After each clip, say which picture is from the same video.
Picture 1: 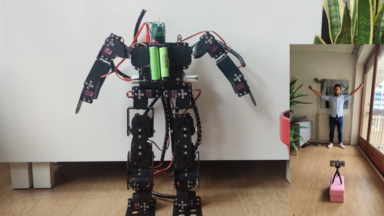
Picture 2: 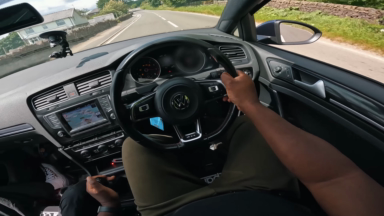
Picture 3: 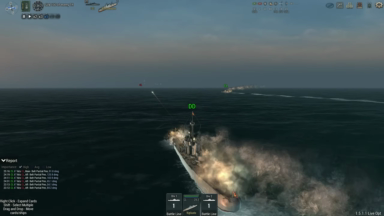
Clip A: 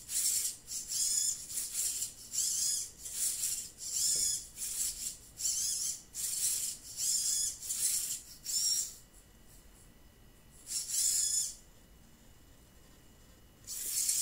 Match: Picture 1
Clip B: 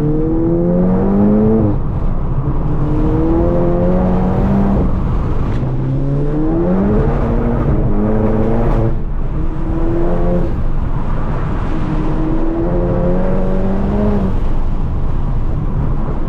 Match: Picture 2